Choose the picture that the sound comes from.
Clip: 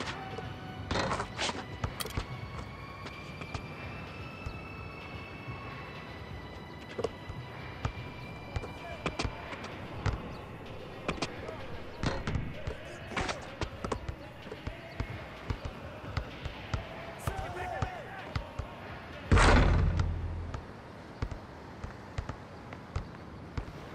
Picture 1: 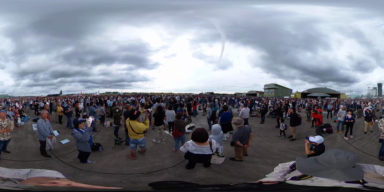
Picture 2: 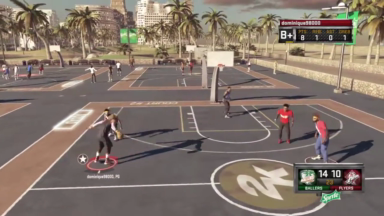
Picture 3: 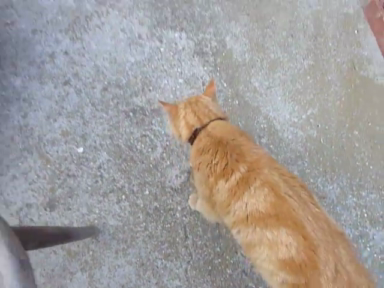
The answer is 2